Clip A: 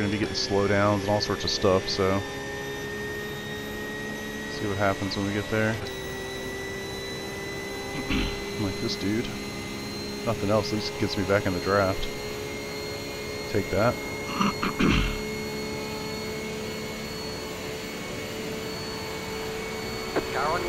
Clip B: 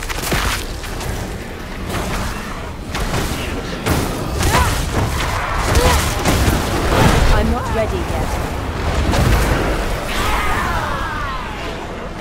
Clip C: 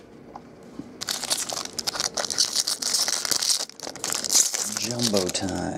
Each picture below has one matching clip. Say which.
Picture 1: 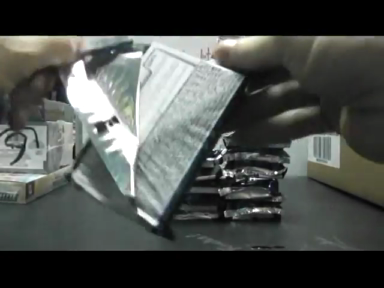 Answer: C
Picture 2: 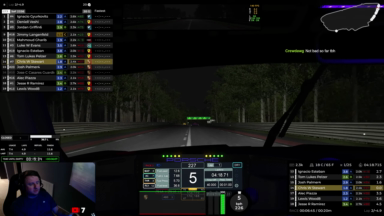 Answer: A